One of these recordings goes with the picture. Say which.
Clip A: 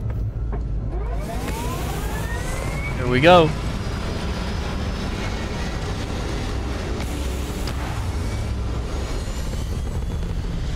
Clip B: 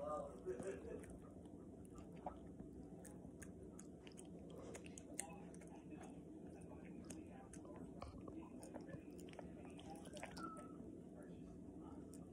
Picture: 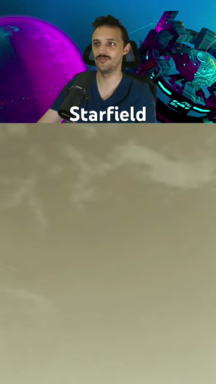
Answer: A